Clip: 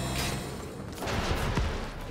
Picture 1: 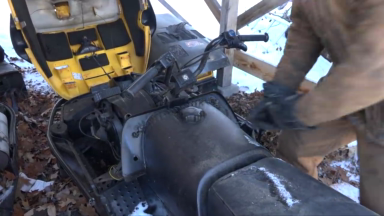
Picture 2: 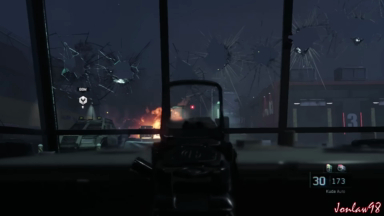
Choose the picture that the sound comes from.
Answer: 2